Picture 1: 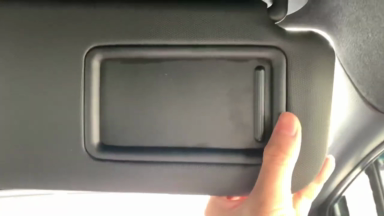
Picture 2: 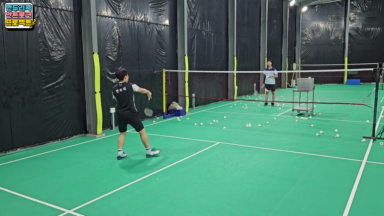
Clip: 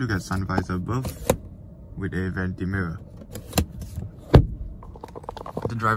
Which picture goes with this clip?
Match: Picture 1